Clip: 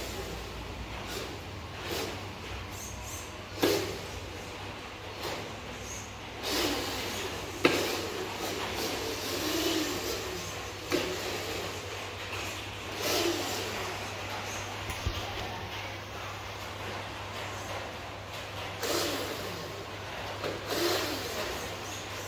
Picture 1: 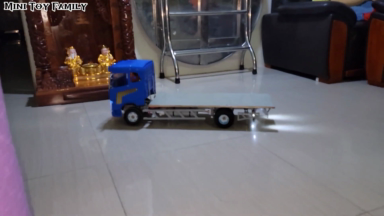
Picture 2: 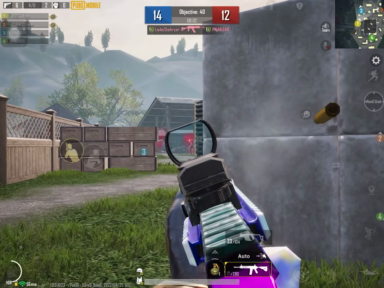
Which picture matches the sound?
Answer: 1